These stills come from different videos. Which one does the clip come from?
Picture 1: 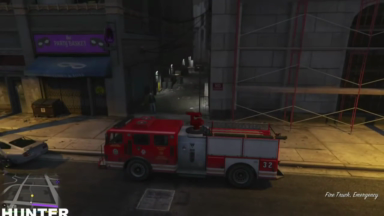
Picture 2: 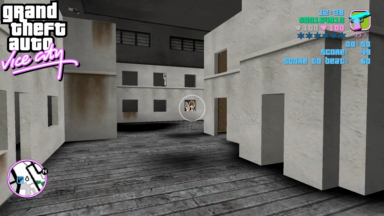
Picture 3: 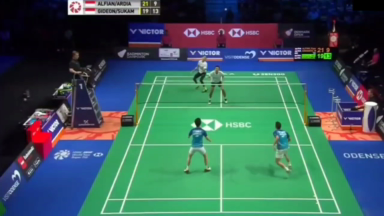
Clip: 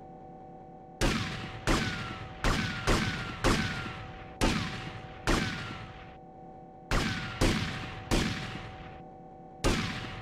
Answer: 2